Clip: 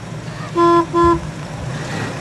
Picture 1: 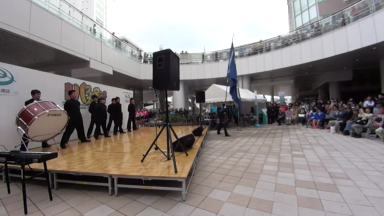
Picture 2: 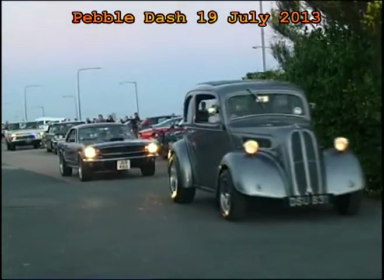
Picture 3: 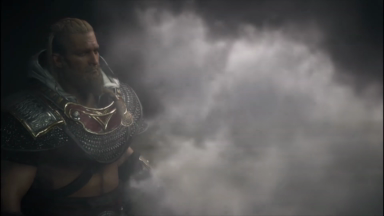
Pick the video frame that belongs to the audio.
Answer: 2